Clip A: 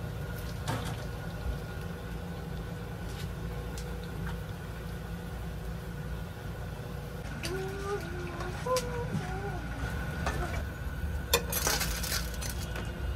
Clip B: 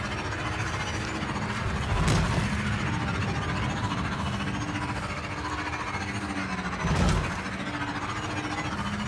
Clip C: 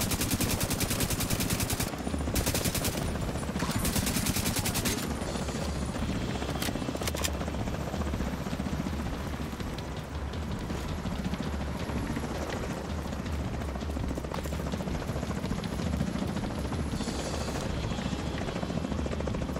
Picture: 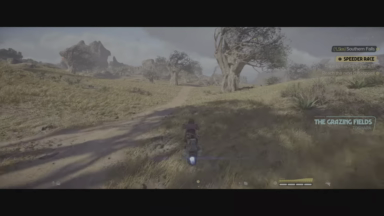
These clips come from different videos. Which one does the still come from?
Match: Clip B